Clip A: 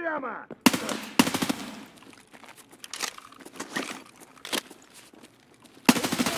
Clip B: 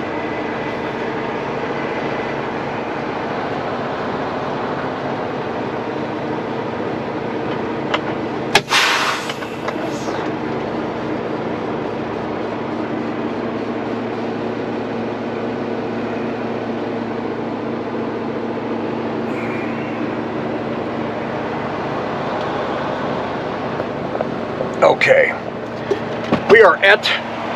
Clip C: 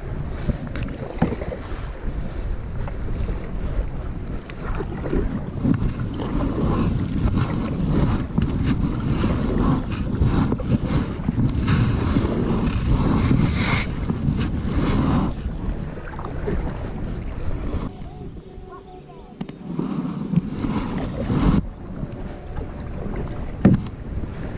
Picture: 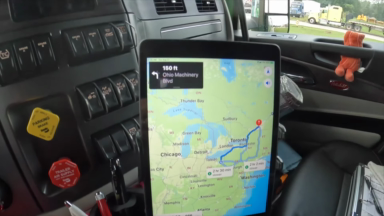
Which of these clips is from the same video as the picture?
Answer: B